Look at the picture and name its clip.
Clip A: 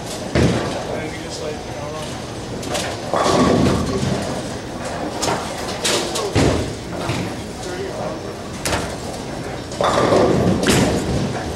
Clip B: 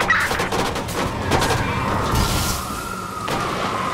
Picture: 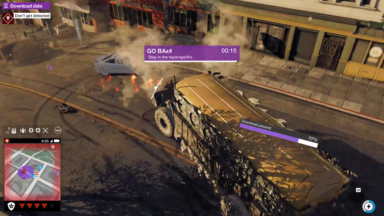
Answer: B